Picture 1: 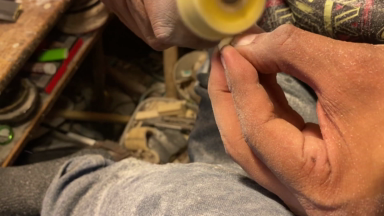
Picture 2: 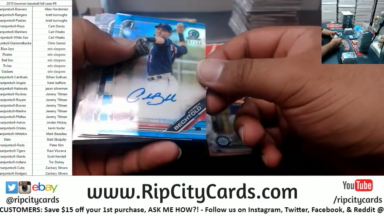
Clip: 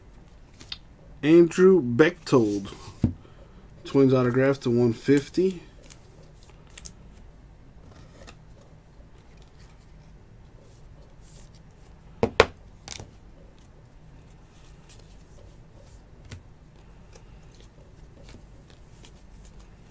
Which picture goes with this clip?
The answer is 2